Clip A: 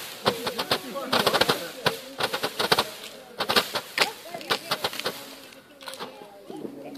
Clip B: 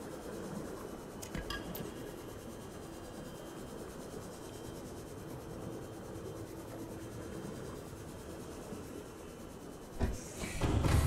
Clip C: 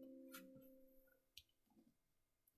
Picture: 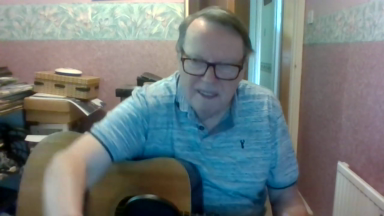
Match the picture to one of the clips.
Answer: C